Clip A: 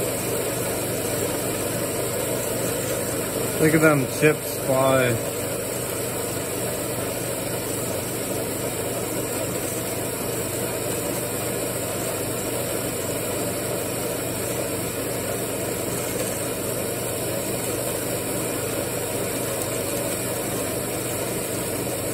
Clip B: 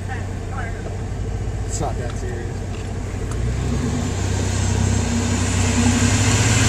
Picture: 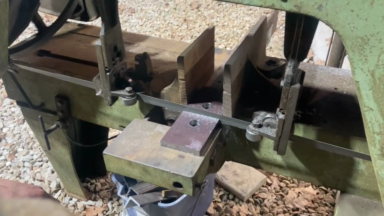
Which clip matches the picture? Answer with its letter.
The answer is A